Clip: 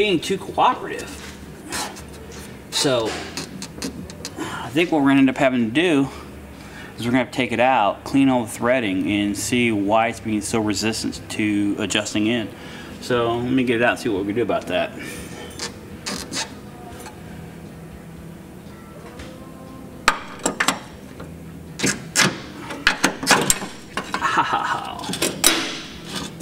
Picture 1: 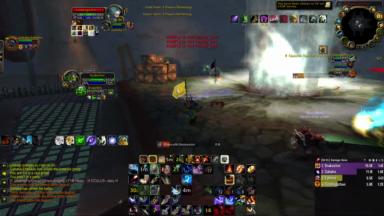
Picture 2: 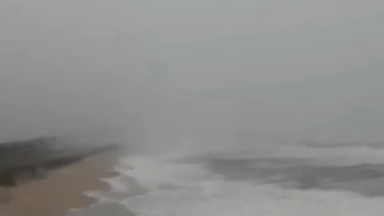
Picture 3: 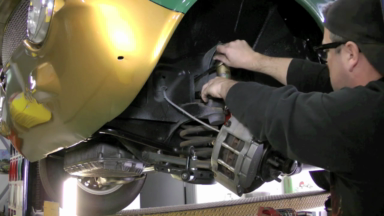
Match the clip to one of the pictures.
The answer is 3